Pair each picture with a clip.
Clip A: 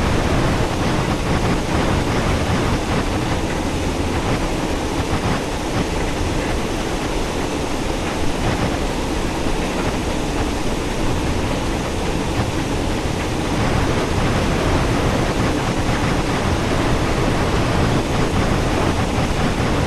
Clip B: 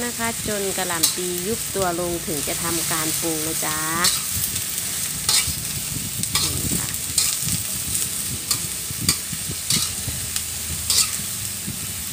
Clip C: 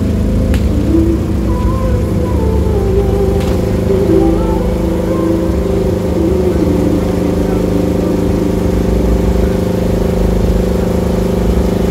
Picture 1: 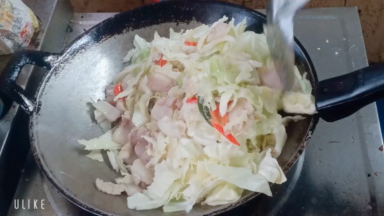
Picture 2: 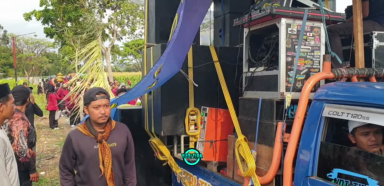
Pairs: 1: B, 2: C